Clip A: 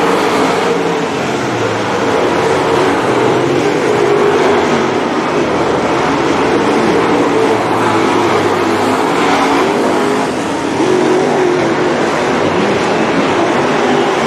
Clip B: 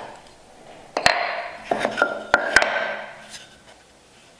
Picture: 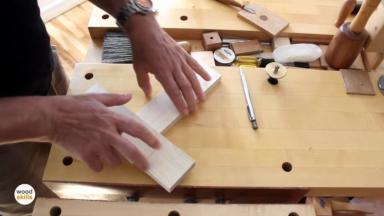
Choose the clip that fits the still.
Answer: B